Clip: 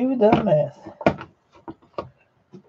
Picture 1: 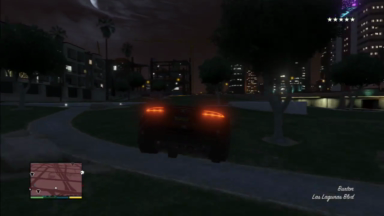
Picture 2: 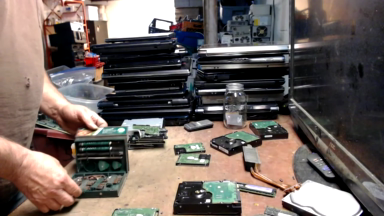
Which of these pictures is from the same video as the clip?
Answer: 2